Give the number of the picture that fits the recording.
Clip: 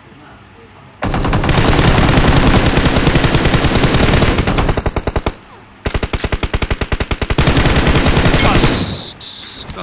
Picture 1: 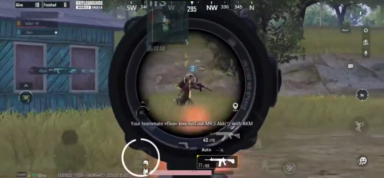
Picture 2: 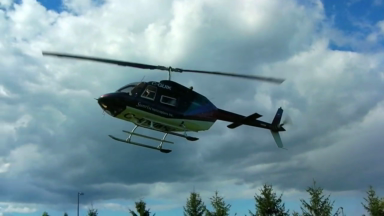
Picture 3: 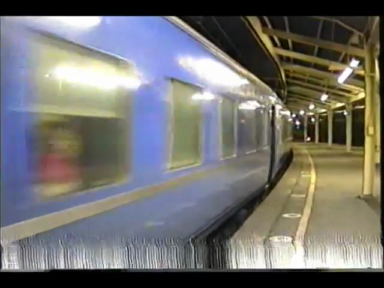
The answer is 1